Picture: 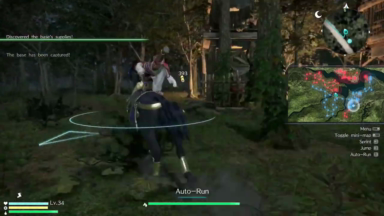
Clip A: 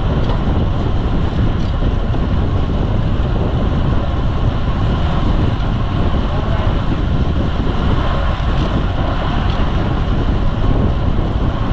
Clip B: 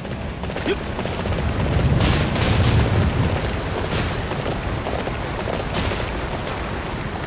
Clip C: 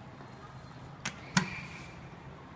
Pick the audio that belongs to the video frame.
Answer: B